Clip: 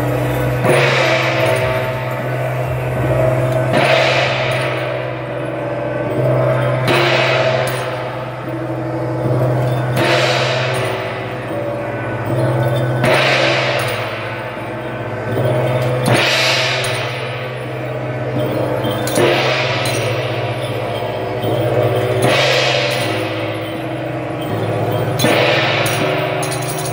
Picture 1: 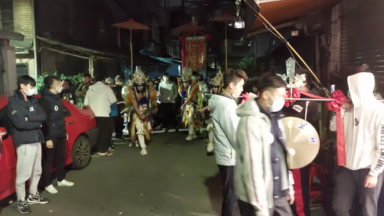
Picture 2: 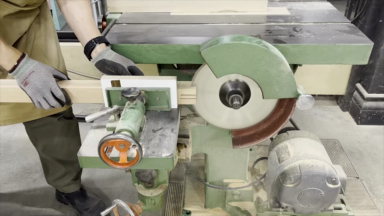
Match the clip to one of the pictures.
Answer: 1